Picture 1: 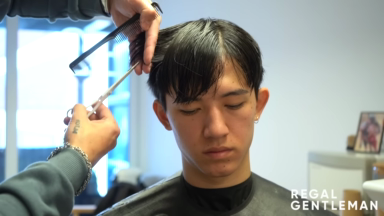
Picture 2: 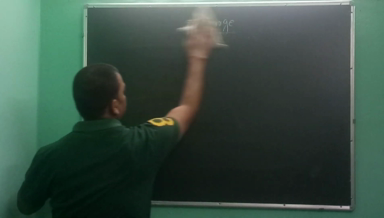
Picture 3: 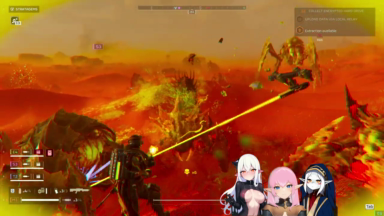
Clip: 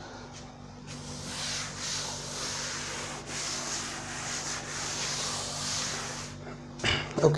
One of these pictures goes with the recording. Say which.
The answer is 2